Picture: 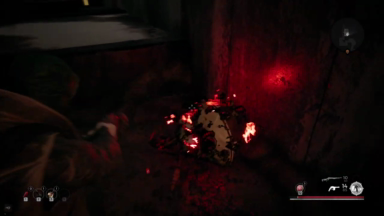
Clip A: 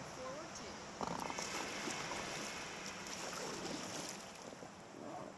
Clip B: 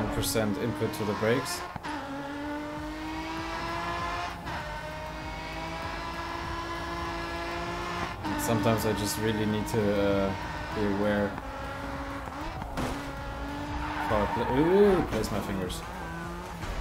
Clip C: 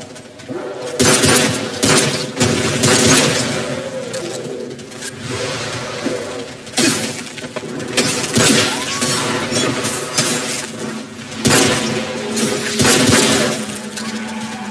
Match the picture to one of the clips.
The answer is C